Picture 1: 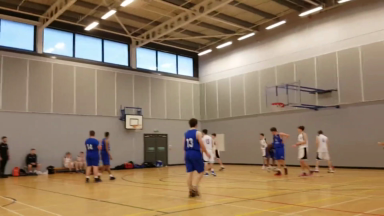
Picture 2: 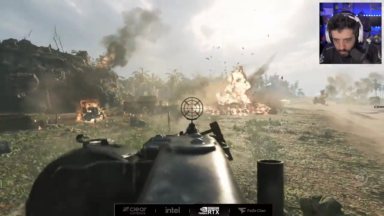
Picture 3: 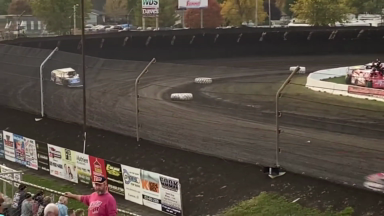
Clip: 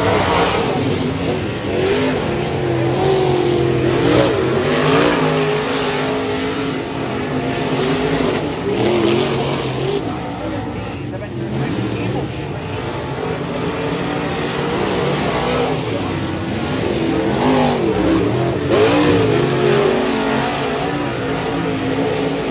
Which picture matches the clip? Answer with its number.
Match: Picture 3